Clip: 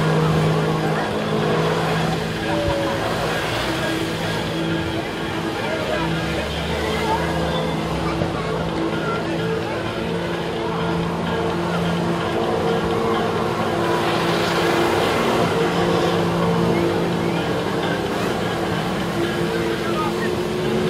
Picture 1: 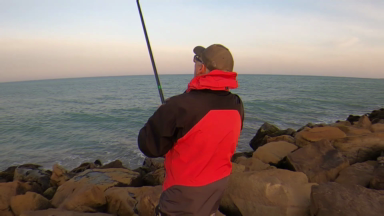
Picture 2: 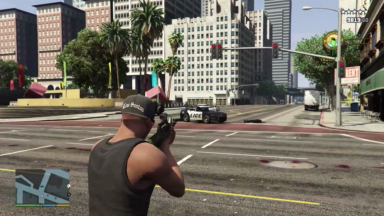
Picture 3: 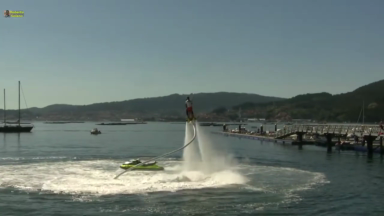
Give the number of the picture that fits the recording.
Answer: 3